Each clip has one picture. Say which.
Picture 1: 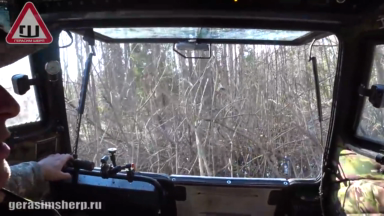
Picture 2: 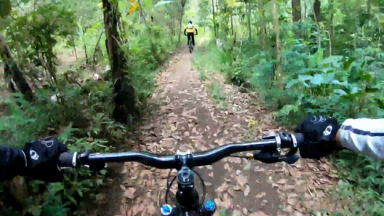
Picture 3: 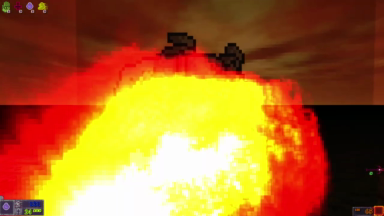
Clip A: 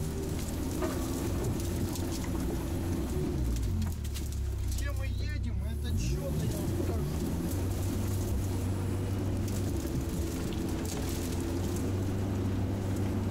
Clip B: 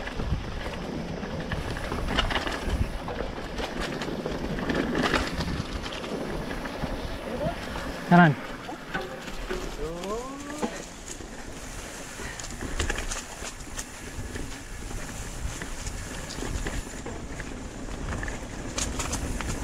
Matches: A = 1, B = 2